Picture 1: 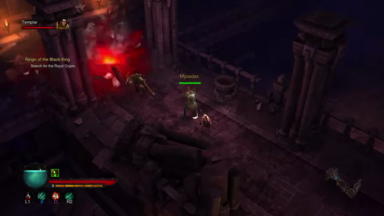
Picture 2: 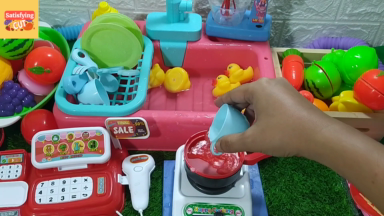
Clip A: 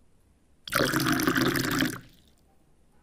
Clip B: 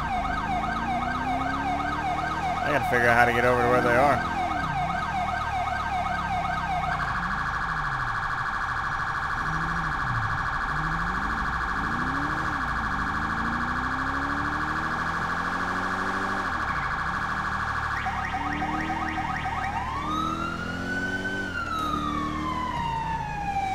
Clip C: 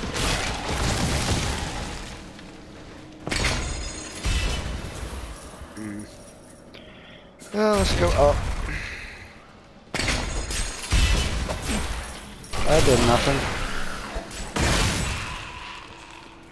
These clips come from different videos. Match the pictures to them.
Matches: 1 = C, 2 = A